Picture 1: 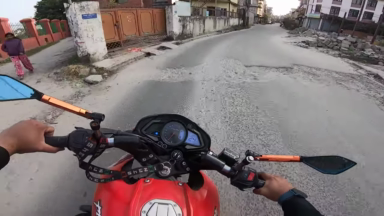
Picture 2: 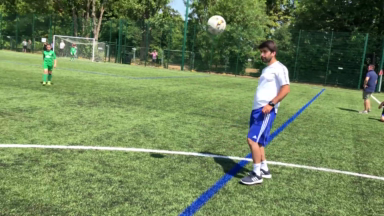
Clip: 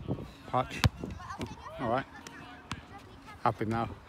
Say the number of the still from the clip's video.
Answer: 2